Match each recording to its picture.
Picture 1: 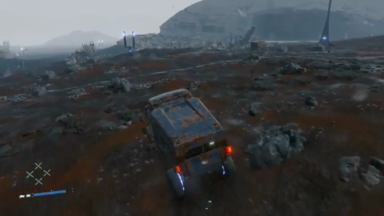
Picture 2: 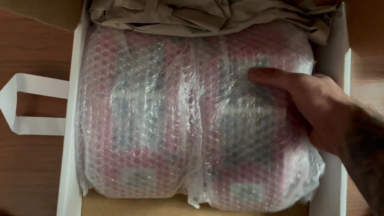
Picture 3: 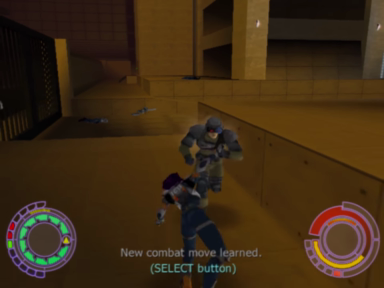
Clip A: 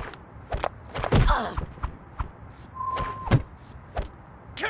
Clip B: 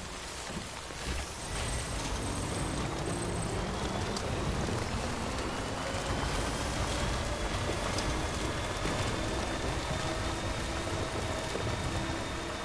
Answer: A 3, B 1